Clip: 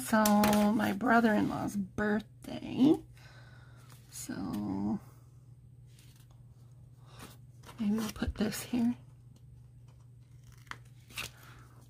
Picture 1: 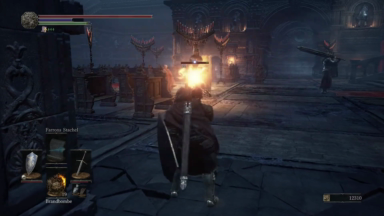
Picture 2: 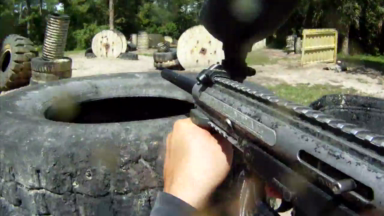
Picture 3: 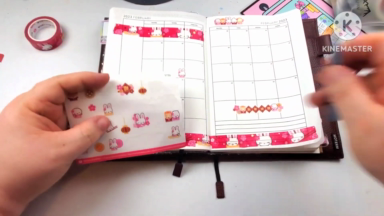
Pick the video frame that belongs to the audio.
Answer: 3